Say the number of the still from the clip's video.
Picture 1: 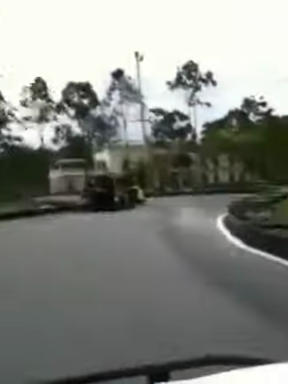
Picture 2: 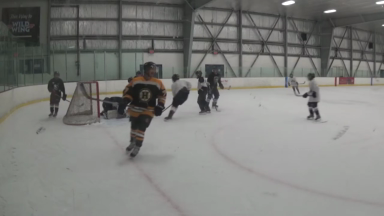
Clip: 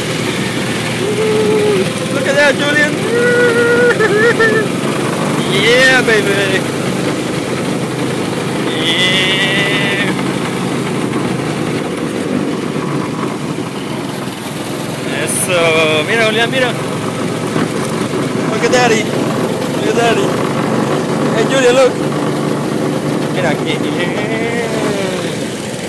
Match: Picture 1